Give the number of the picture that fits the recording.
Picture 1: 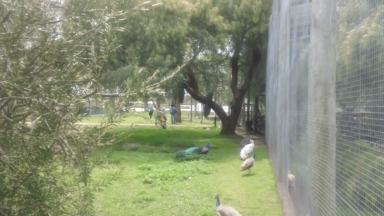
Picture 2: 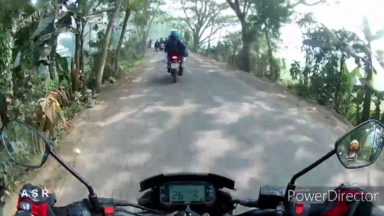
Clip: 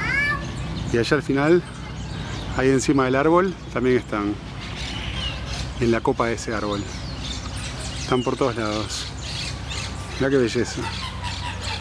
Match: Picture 1